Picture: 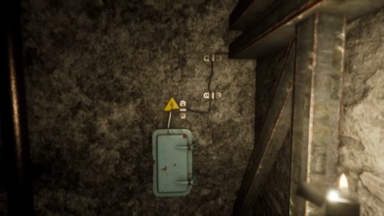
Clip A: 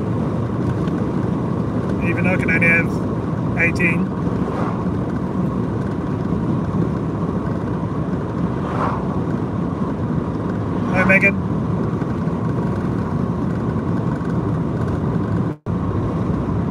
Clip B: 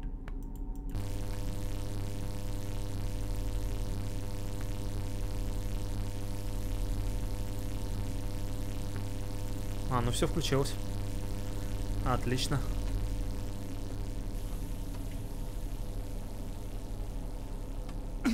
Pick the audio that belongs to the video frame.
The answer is B